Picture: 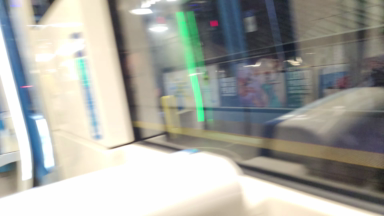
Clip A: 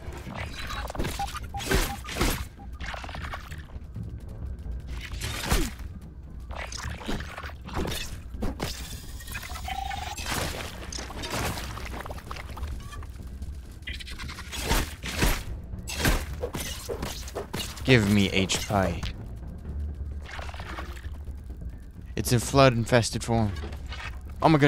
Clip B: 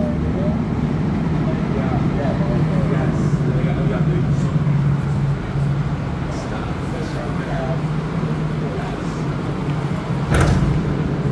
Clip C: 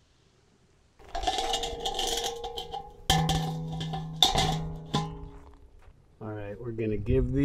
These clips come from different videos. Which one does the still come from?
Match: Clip B